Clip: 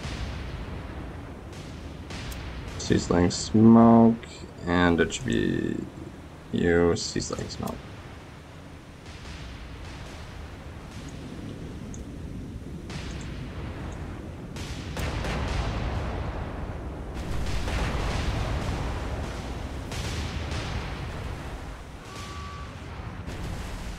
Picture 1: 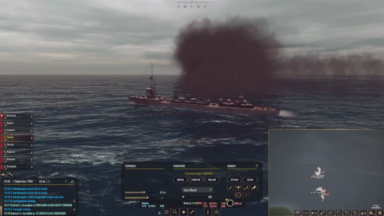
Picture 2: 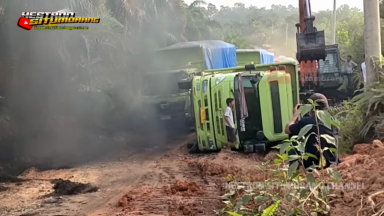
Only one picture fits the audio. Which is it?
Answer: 1